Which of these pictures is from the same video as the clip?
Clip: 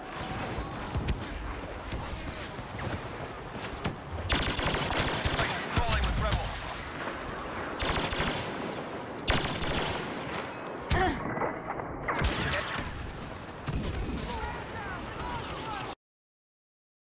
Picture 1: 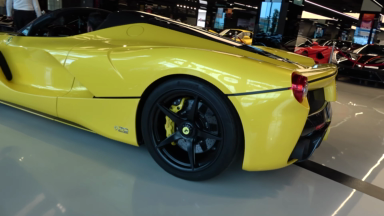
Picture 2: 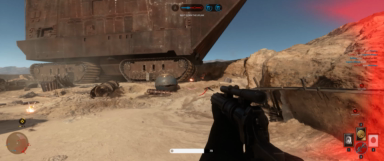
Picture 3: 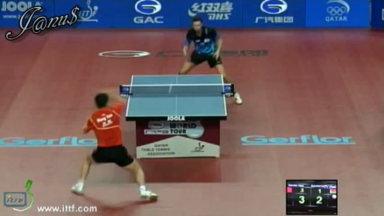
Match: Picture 2